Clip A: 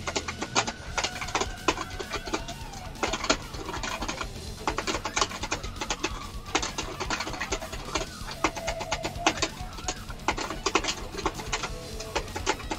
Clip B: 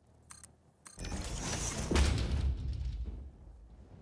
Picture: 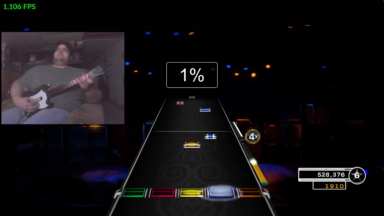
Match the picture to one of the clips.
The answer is A